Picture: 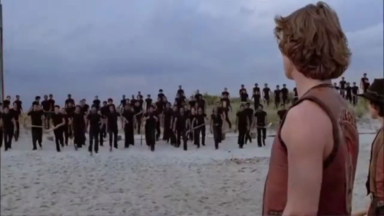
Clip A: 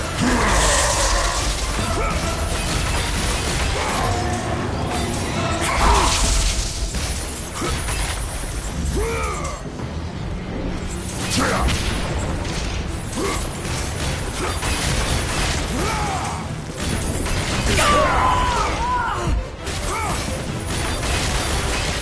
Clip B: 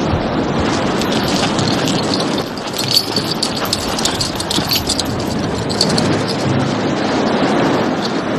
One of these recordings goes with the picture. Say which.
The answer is B